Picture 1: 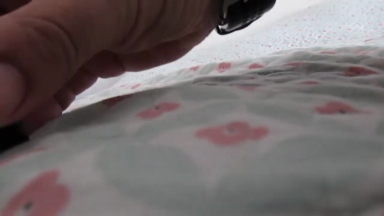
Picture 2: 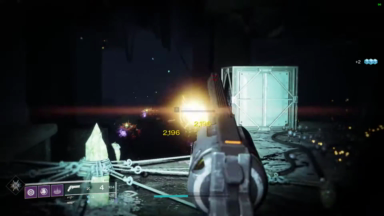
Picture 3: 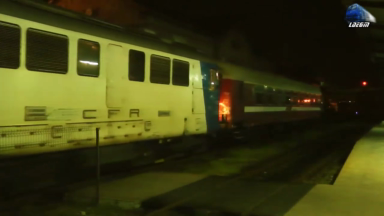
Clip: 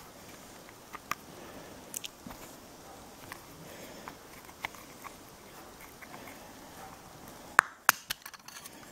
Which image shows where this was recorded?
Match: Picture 1